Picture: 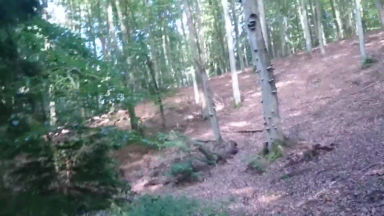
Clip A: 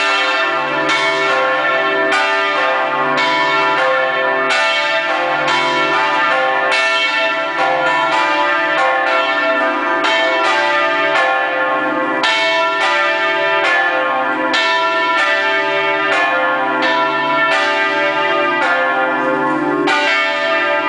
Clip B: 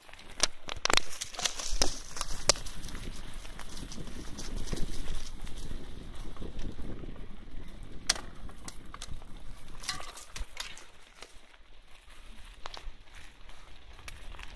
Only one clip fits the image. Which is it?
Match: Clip B